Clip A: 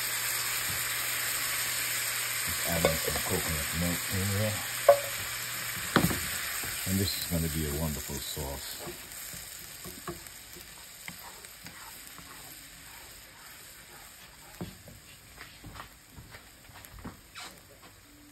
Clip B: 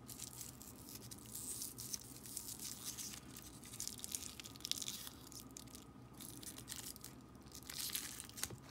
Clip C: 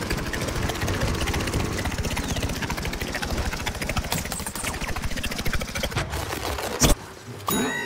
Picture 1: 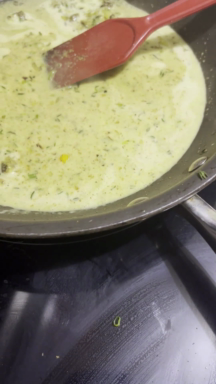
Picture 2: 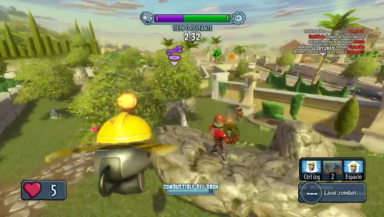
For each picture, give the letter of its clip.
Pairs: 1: A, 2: C